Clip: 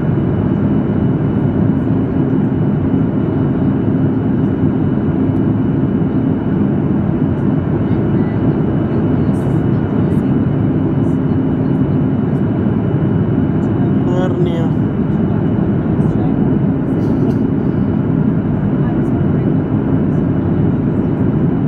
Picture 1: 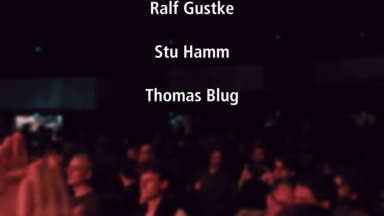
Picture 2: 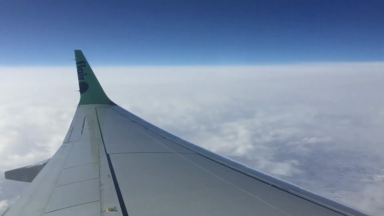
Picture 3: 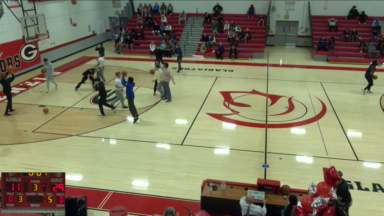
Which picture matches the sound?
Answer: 2